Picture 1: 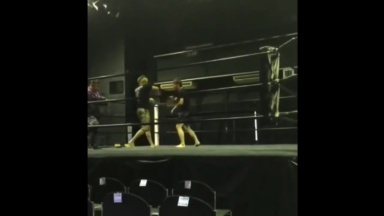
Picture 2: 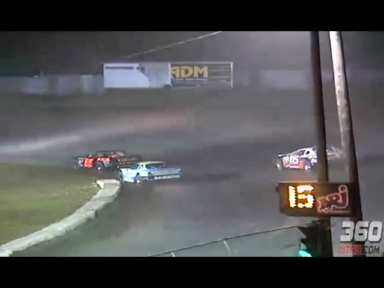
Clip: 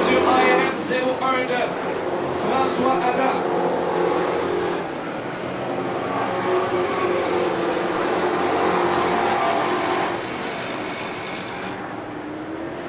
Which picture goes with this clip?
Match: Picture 2